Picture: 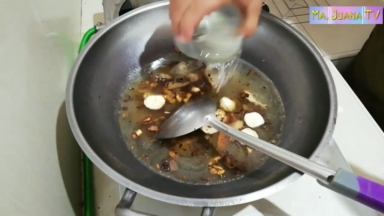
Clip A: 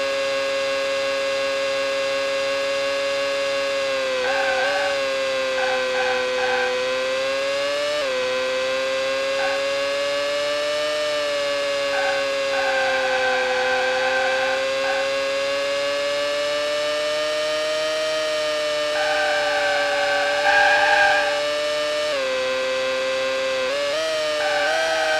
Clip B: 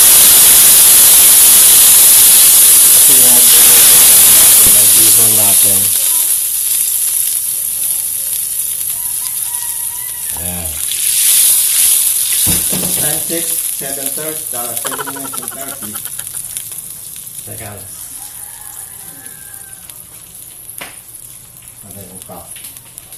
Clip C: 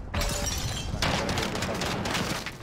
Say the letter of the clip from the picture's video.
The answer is B